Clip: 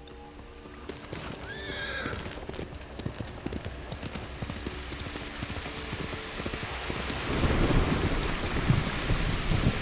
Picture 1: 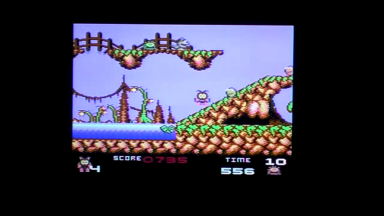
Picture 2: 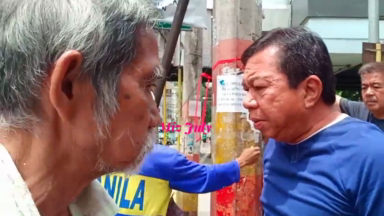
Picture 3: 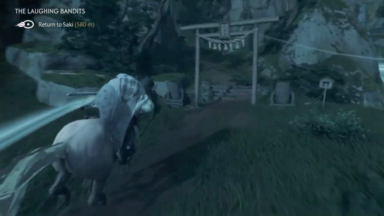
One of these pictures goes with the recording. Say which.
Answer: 3